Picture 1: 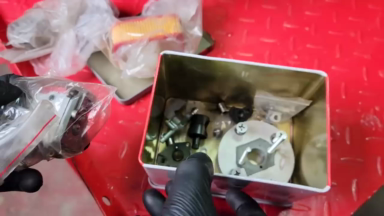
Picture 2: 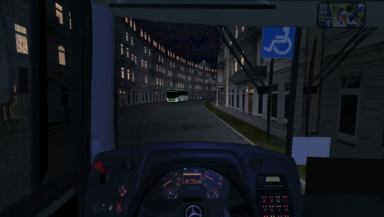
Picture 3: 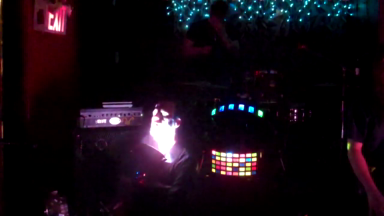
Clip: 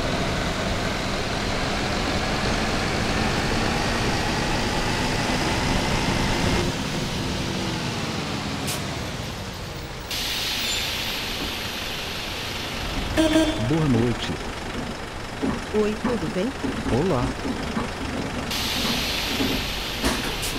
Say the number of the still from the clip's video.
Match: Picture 2